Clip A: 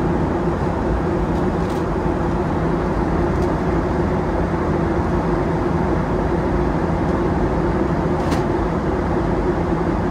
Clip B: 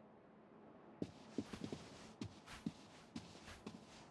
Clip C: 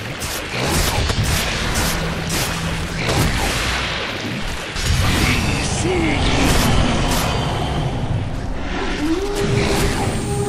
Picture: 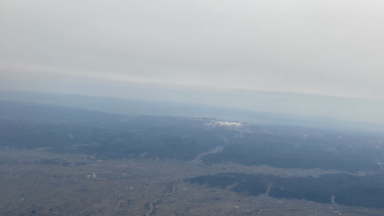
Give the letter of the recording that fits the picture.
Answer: A